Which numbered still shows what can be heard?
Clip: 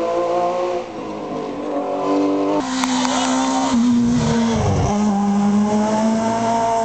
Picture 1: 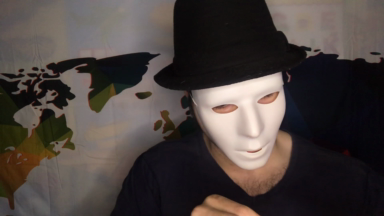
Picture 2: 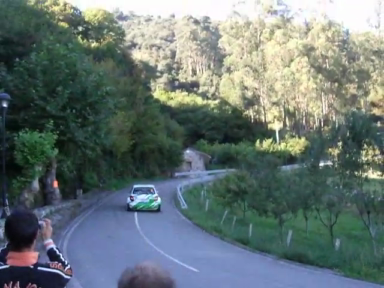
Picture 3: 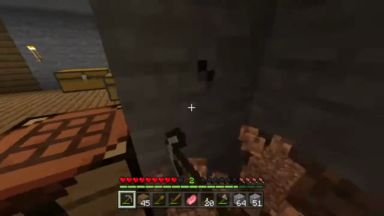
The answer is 2